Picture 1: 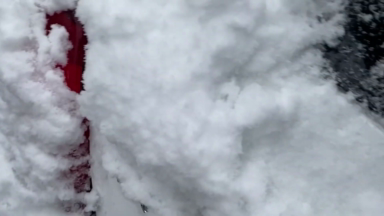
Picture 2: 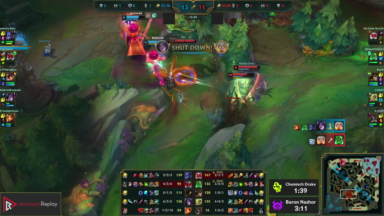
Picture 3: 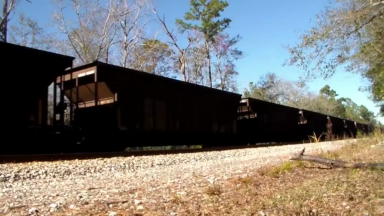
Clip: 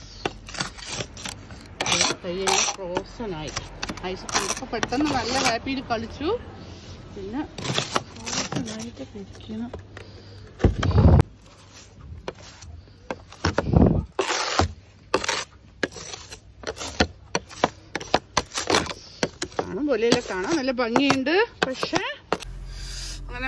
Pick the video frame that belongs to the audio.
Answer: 1